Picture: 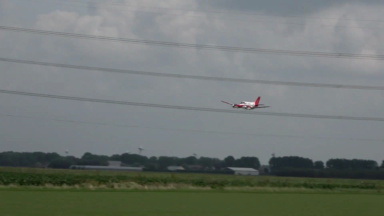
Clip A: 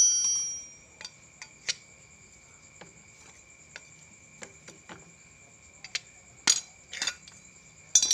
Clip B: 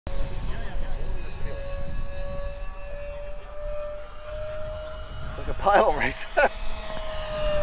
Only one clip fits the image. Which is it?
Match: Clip B